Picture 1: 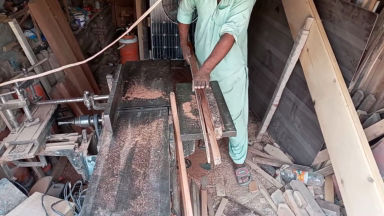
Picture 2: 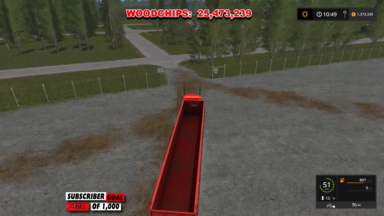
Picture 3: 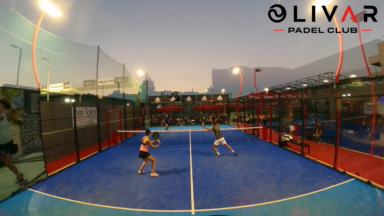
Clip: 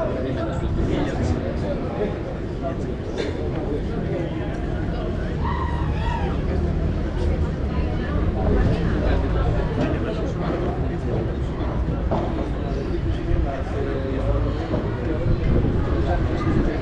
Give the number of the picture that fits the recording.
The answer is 3